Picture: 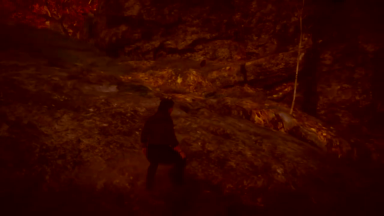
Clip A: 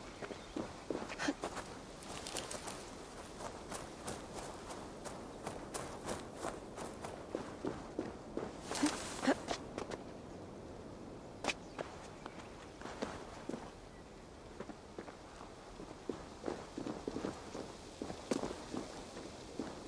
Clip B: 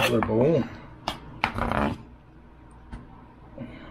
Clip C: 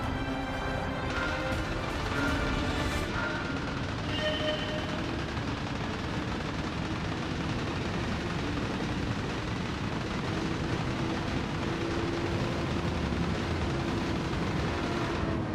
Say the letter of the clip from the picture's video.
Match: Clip A